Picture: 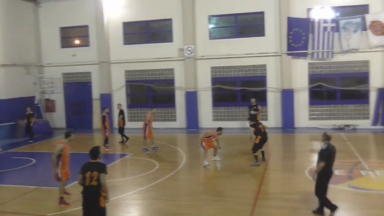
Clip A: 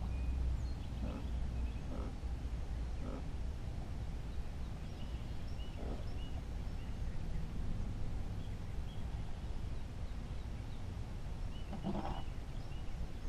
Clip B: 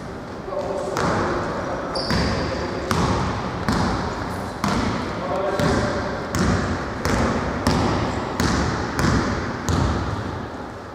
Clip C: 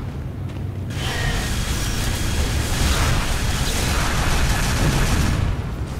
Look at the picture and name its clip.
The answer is B